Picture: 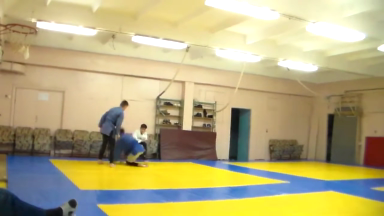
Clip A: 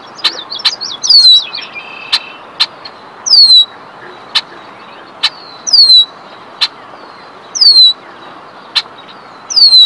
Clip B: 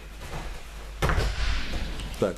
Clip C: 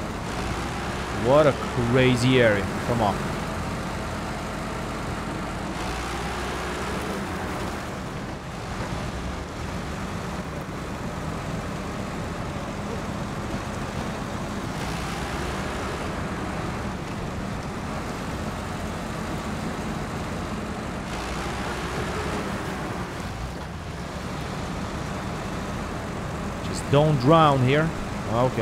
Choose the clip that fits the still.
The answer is B